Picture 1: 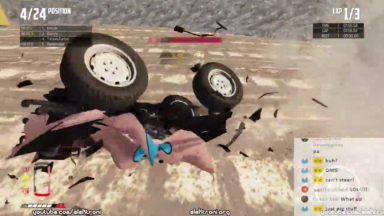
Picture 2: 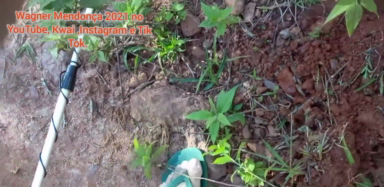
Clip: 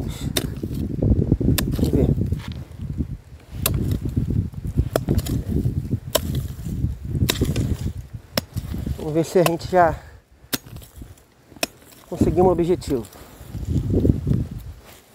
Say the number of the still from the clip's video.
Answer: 2